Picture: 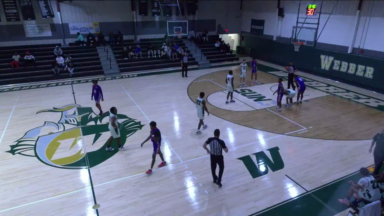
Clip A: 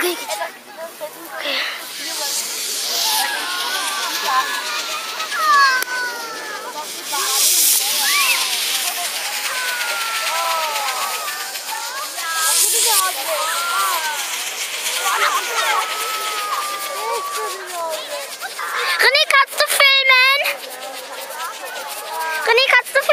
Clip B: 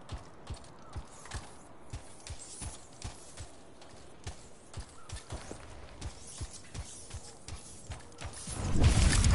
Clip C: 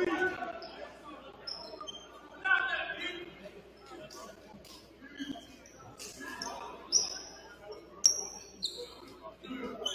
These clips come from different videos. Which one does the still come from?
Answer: C